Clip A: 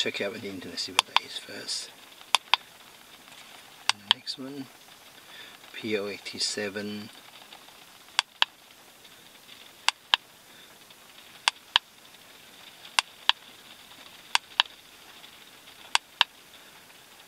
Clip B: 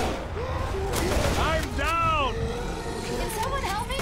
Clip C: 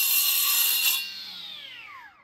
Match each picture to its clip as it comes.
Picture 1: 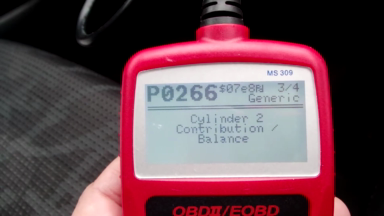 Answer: A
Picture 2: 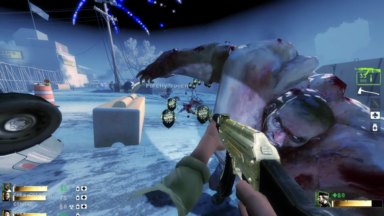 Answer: B